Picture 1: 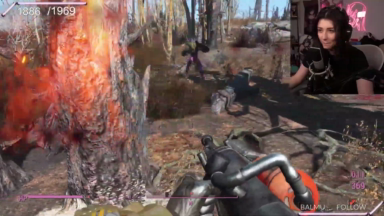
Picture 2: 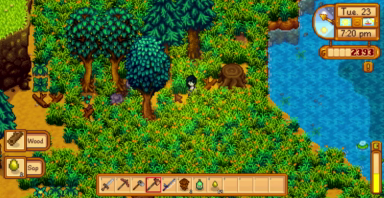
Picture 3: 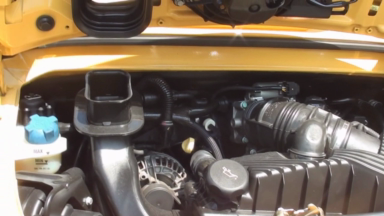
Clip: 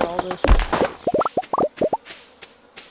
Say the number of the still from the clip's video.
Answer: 2